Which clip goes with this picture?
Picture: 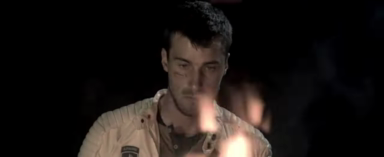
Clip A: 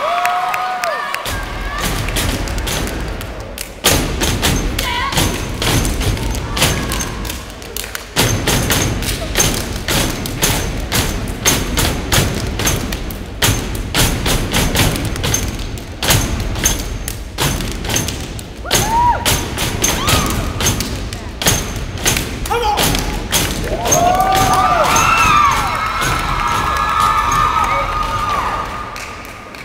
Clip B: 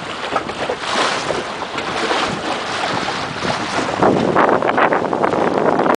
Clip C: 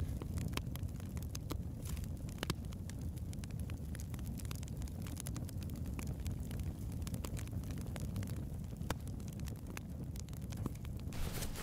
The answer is C